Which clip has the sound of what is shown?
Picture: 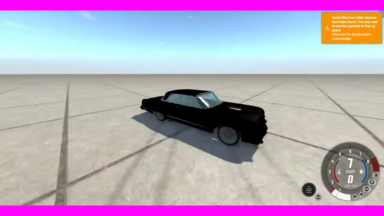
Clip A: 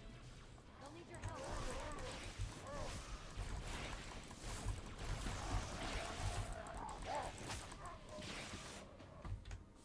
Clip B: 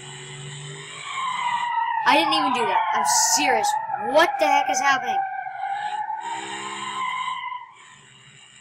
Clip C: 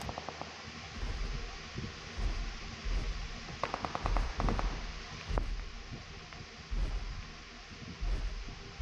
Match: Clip B